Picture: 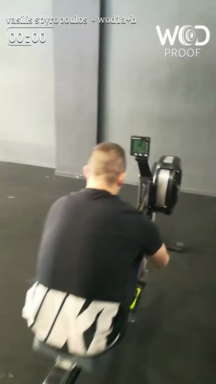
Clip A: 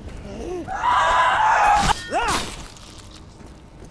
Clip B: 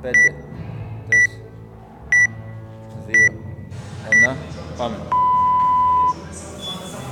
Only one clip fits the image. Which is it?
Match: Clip B